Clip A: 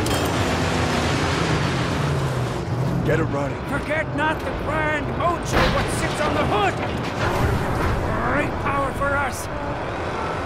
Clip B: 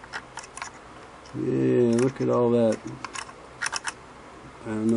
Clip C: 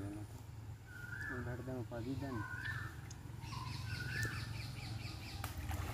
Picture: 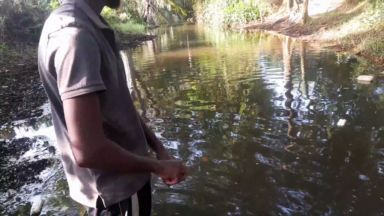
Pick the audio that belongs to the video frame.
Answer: C